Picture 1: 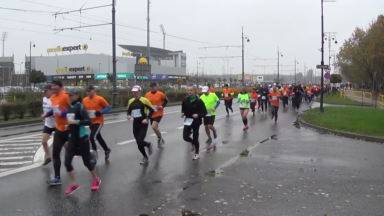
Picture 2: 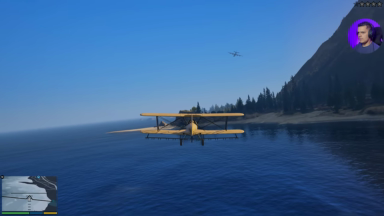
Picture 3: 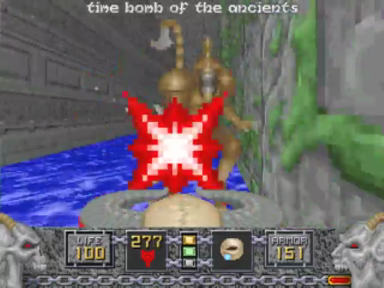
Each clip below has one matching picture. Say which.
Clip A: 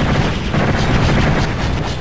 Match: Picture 3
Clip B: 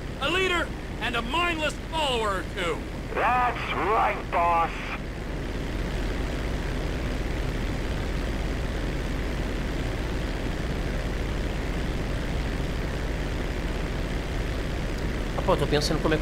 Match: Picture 2